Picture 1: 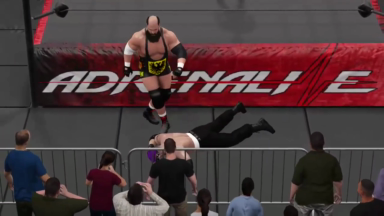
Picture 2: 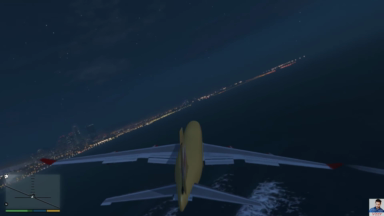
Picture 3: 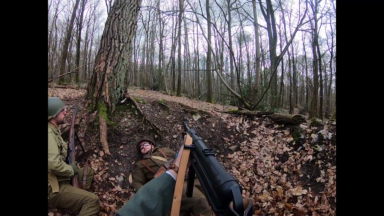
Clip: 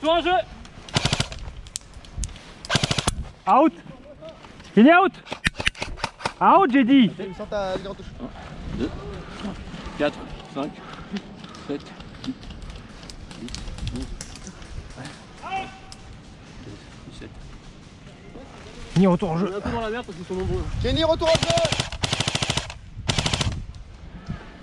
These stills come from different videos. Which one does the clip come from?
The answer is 3